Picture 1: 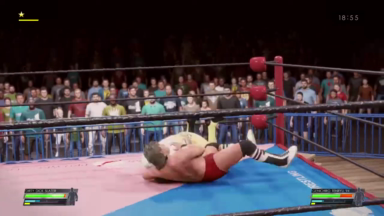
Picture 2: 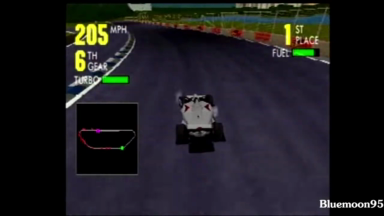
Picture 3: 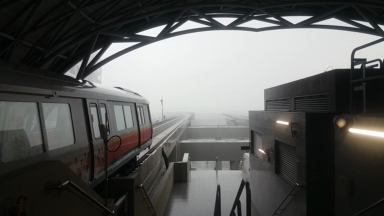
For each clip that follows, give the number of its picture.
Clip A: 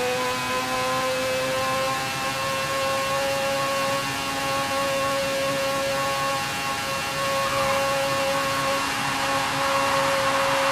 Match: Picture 2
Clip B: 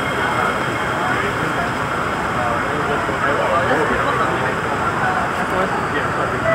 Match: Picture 3